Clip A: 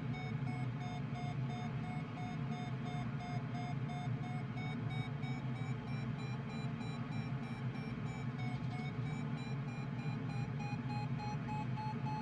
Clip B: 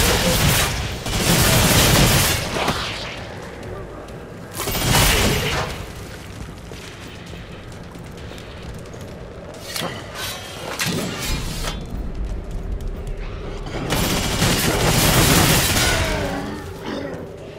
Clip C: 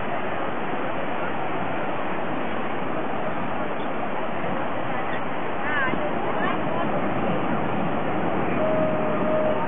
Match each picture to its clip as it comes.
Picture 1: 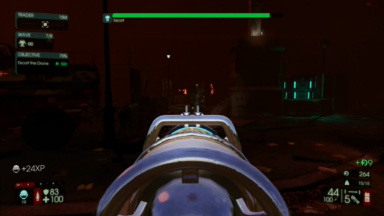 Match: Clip B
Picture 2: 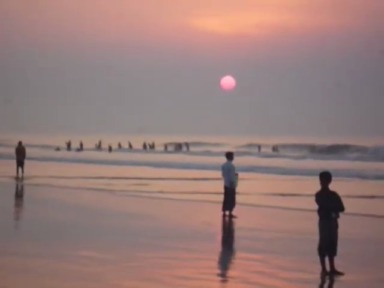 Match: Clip C